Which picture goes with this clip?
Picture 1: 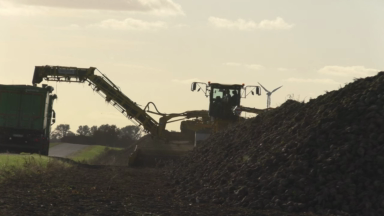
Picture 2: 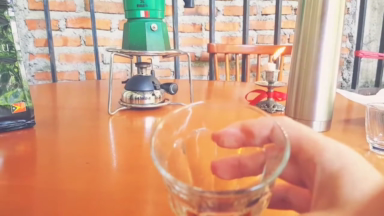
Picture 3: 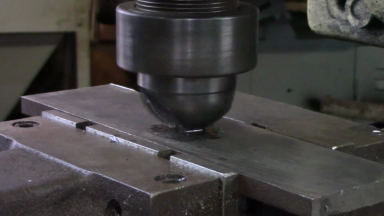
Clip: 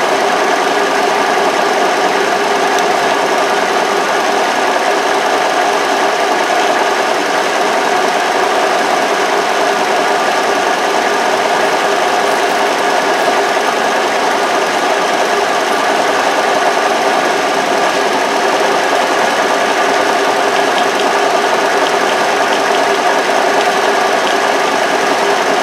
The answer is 3